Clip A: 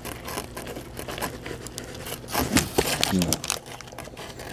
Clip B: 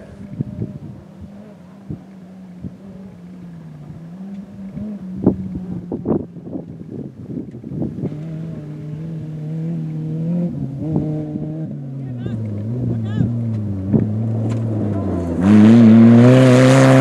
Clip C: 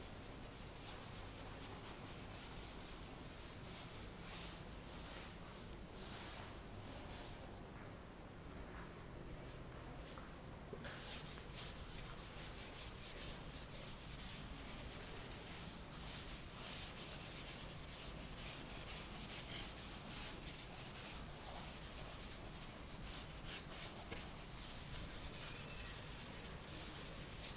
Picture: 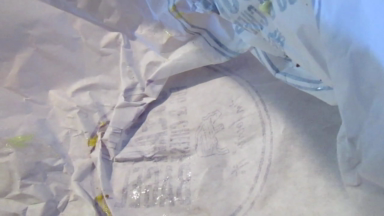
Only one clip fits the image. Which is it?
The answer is A